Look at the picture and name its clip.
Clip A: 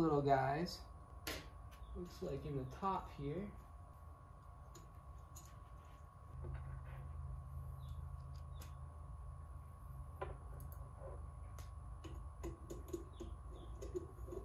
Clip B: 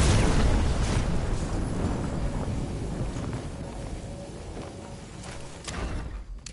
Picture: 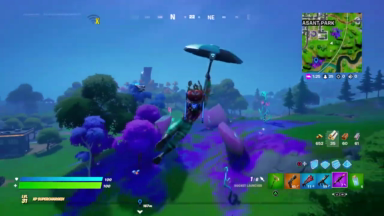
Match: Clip B